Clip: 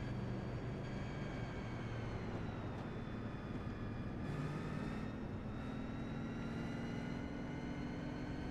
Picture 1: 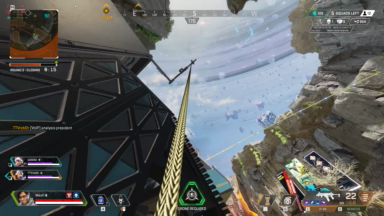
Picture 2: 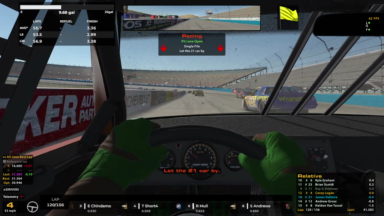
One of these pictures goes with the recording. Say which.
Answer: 2